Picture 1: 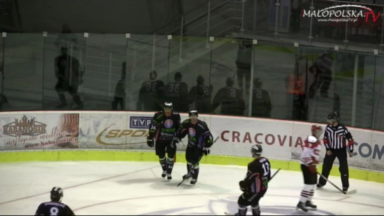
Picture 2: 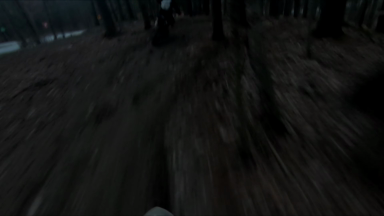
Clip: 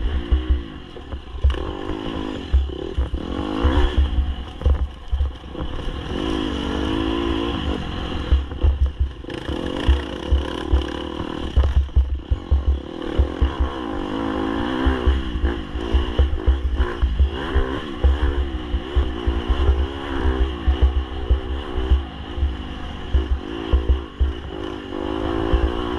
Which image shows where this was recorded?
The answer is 2